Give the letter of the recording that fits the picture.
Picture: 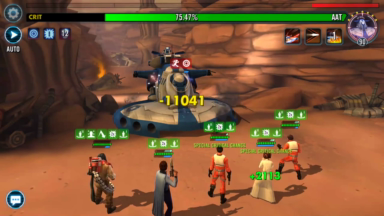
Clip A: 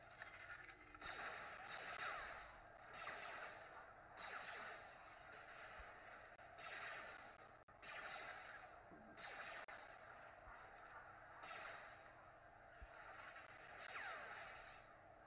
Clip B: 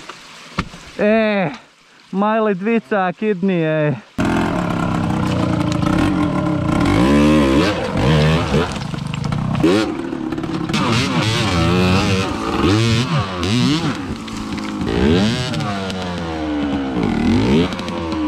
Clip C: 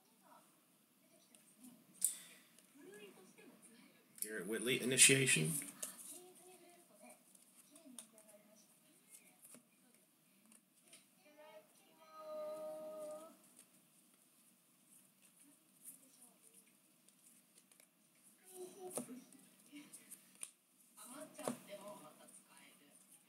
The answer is A